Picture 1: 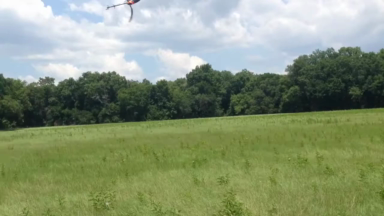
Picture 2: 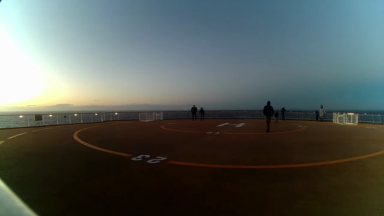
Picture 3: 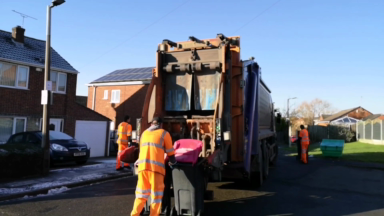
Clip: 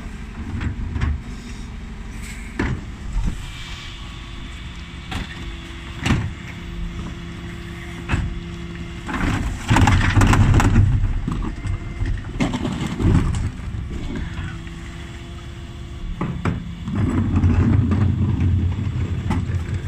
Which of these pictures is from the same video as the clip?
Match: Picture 3